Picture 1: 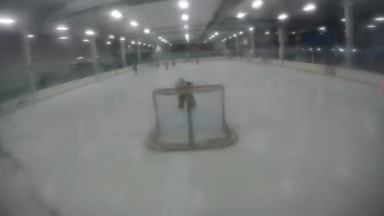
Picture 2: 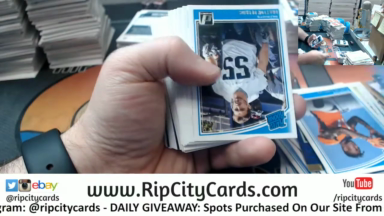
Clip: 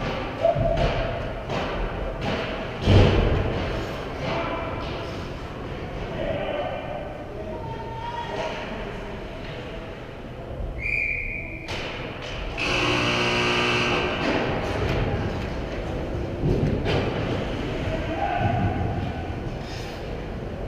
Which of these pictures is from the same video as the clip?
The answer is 1